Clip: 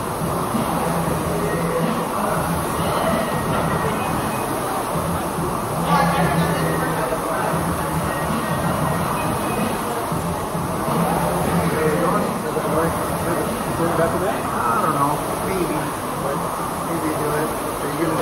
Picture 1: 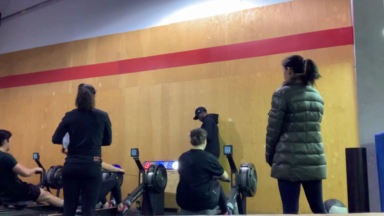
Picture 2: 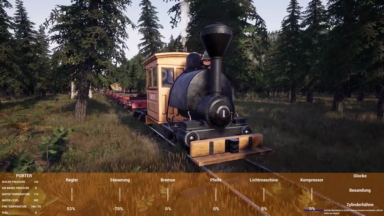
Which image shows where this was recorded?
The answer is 1